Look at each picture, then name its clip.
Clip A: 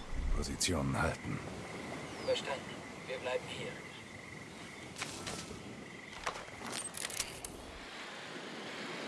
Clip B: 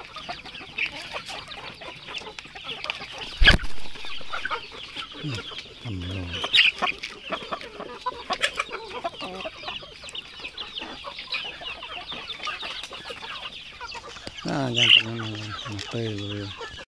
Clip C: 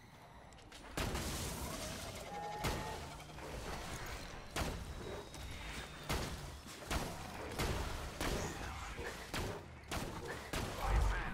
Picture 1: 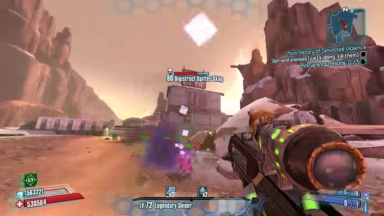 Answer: C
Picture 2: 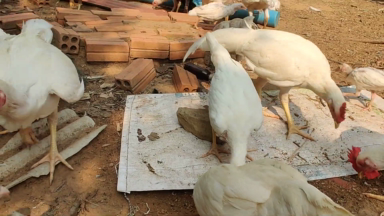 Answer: B